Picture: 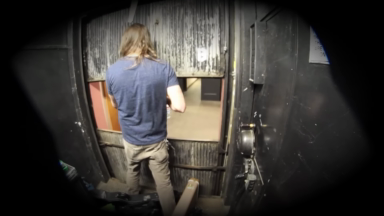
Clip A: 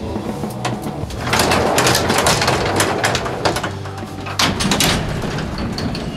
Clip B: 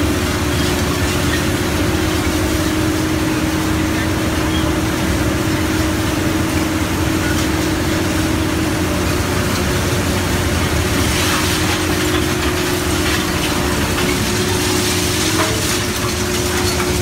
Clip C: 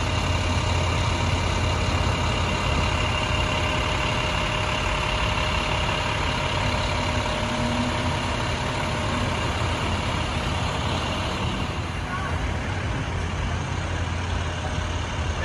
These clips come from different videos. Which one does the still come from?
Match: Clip A